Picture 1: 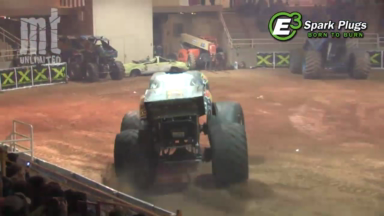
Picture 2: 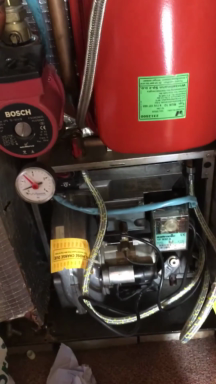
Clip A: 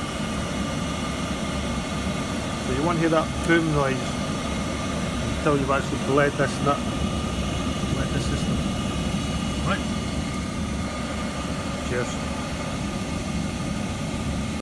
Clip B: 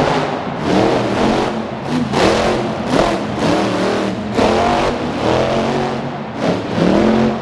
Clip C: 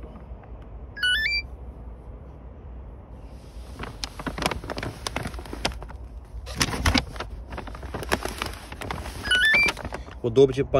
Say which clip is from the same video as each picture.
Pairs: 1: B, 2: A